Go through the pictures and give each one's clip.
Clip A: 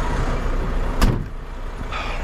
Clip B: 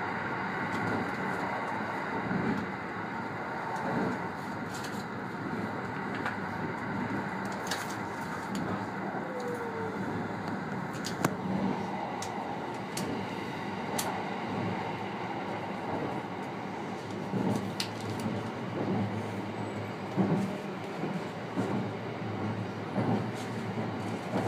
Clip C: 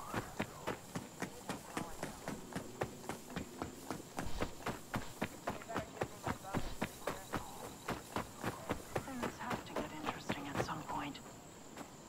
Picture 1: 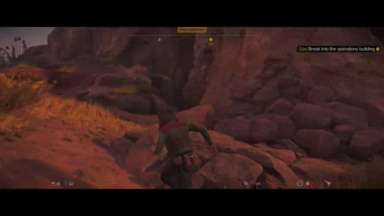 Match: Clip C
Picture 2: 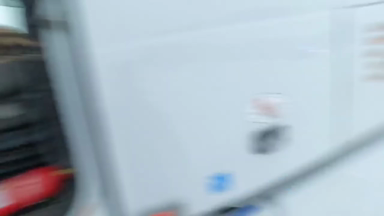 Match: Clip A